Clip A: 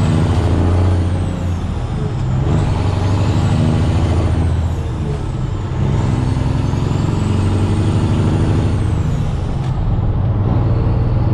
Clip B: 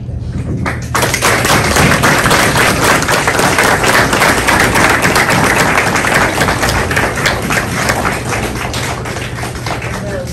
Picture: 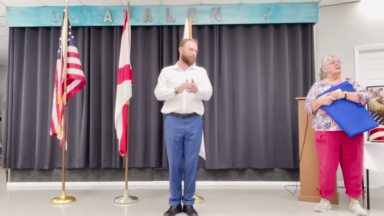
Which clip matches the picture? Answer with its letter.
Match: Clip B